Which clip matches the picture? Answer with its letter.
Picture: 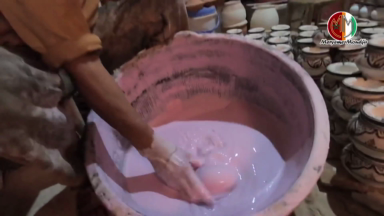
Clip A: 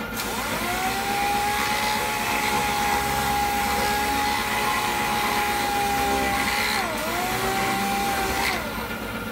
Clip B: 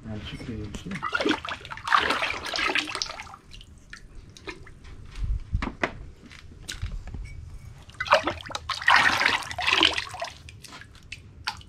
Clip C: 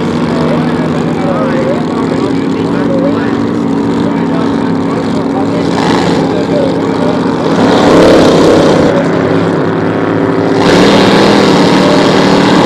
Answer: B